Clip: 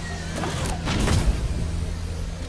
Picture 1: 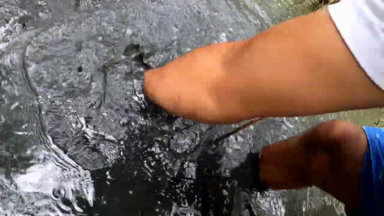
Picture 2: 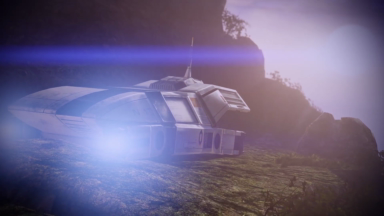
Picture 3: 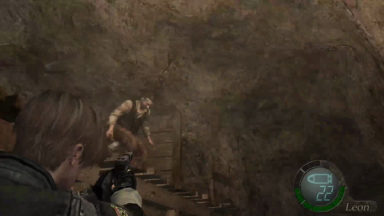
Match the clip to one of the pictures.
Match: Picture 2